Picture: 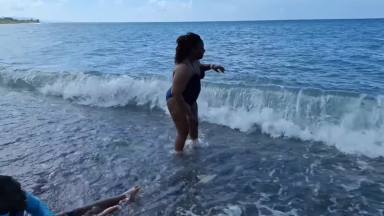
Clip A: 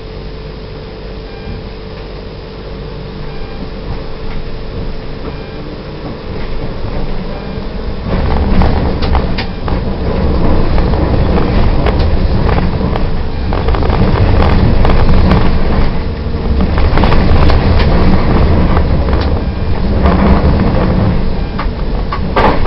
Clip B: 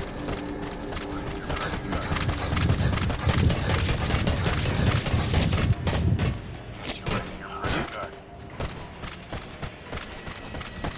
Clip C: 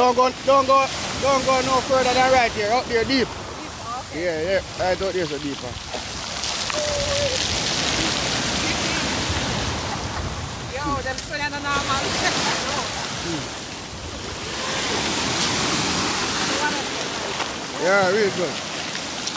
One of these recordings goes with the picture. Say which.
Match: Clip C